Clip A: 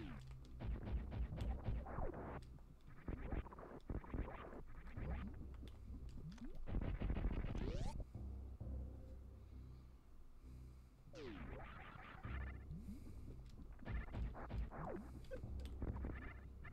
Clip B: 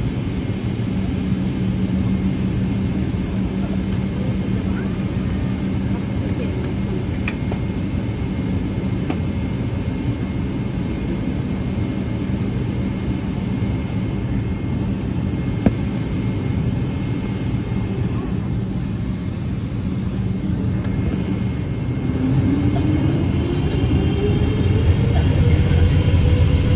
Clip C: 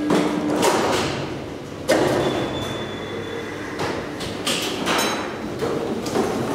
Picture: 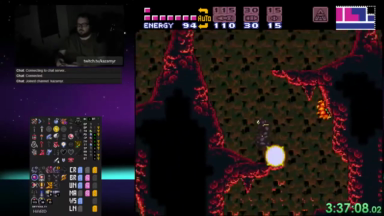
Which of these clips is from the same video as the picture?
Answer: A